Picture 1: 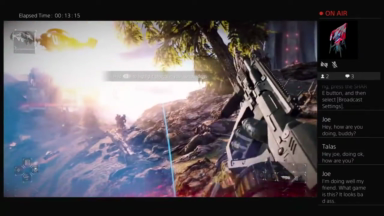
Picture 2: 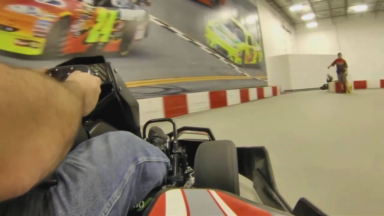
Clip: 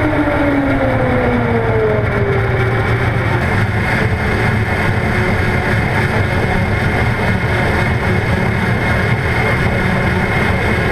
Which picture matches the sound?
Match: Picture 2